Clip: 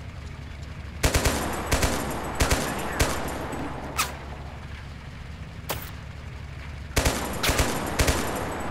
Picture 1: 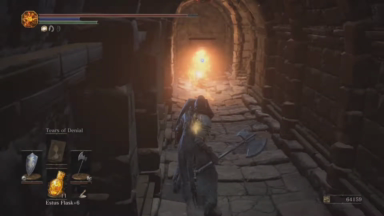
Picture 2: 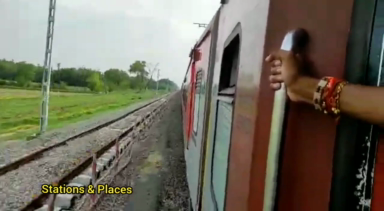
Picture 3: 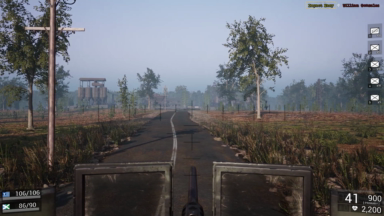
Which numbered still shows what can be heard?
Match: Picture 3